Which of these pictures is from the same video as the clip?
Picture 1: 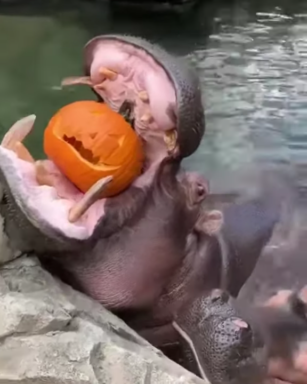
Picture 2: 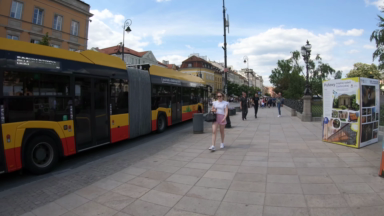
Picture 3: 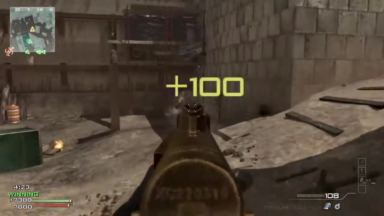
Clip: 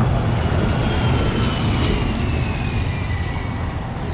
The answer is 2